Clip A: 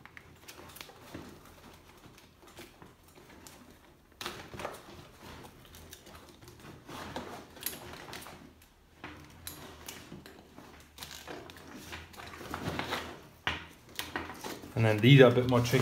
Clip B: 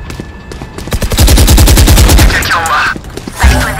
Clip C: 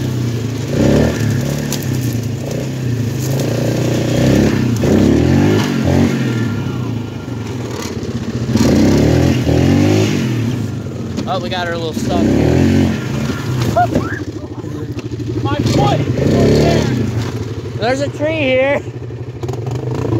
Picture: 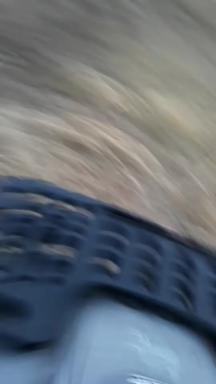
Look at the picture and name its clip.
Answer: C